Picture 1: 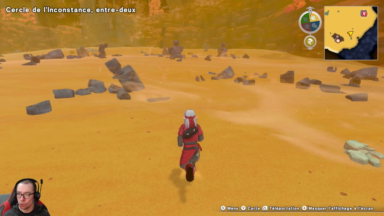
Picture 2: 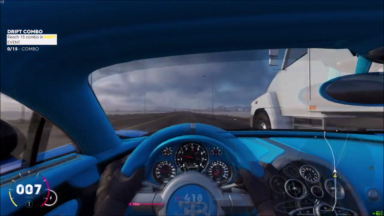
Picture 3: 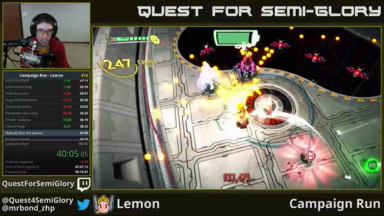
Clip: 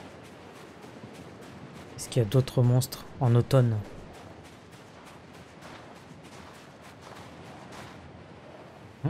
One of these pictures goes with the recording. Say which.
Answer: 1